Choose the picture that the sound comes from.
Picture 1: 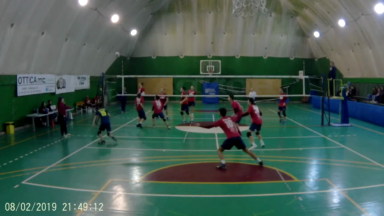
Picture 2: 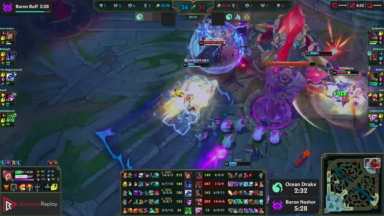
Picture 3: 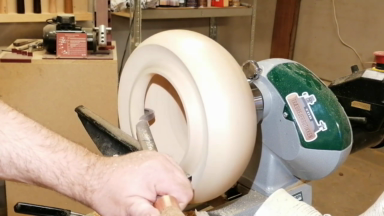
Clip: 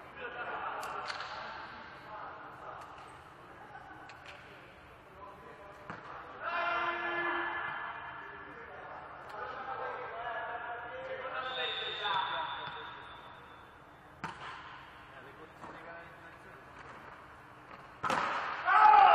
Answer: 1